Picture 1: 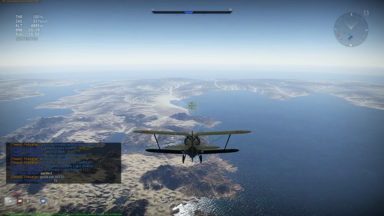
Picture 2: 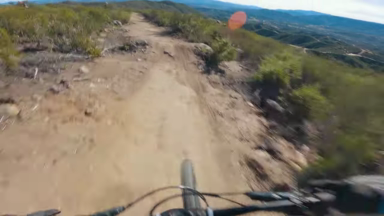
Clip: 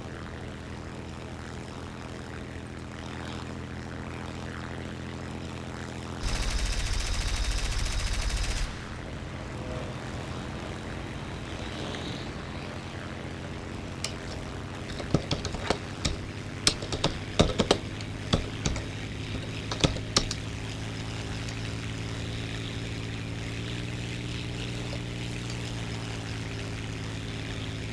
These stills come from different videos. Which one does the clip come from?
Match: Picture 1